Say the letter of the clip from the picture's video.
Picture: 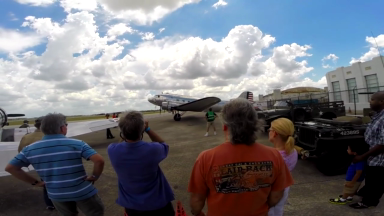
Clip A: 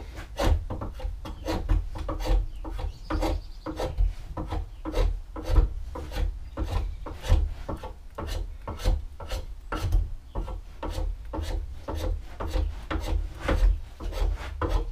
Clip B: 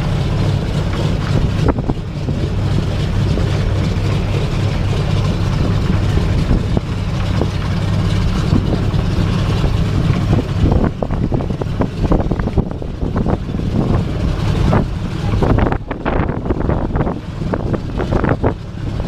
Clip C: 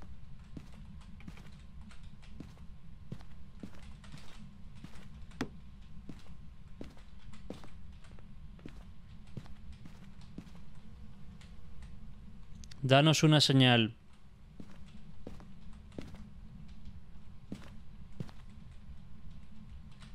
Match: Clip B